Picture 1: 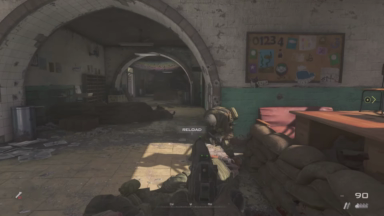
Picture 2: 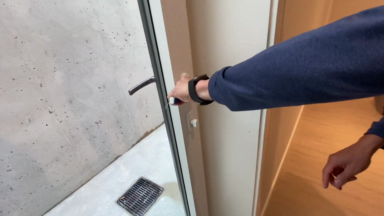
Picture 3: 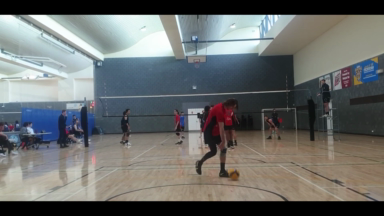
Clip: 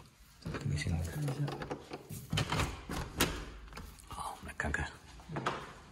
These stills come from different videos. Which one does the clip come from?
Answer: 2